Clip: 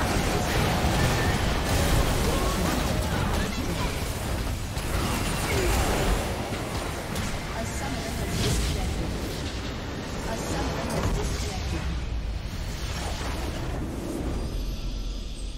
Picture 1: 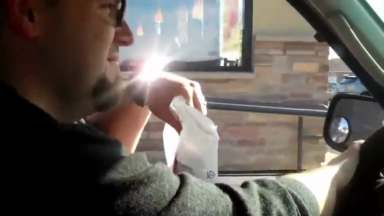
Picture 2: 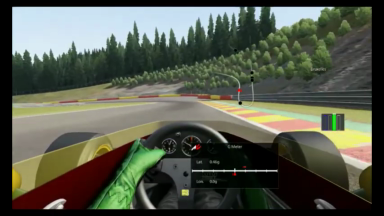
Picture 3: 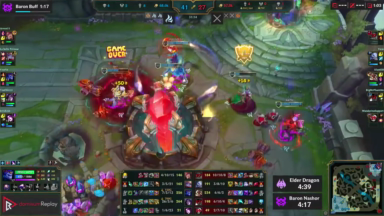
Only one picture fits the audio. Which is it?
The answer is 3